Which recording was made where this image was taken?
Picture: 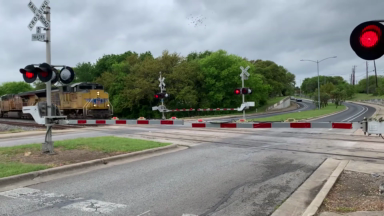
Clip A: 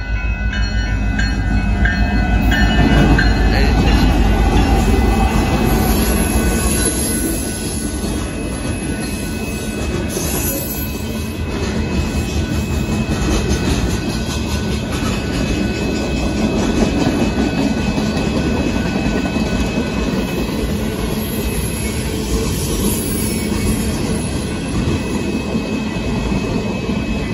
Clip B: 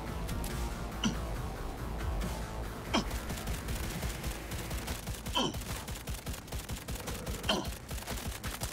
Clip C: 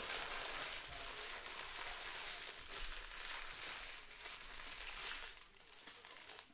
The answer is A